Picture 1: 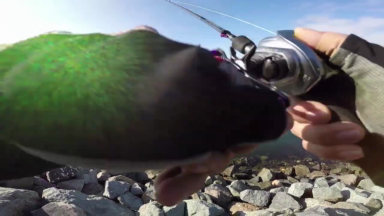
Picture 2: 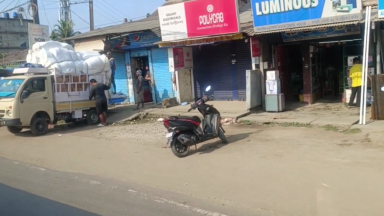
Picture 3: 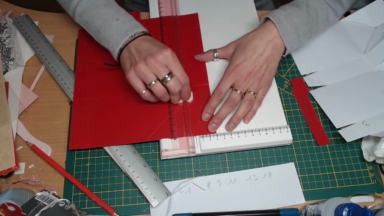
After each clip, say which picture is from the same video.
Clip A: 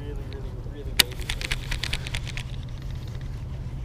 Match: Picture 1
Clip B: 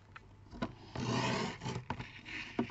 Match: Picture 3